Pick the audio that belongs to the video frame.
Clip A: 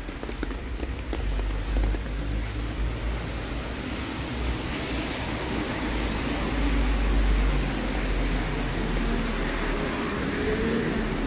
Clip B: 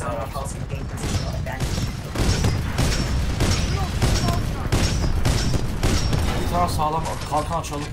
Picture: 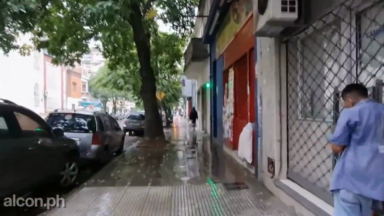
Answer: A